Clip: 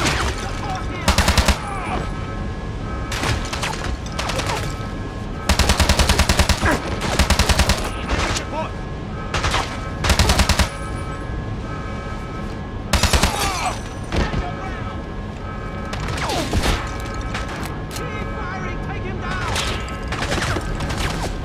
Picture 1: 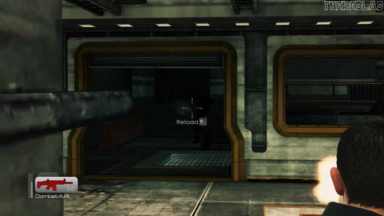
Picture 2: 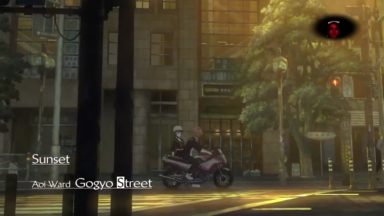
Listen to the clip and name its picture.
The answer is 1